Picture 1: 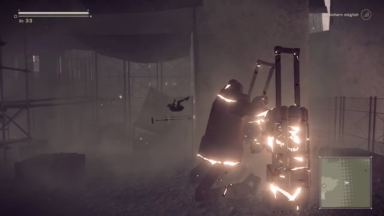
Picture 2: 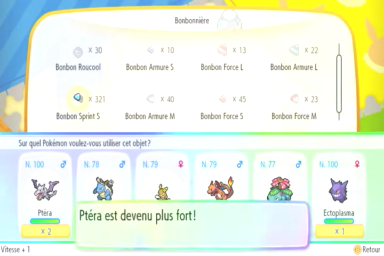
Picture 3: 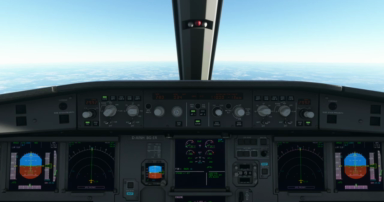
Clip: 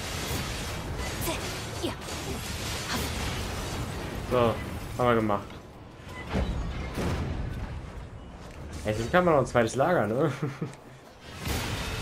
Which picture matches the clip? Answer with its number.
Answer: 1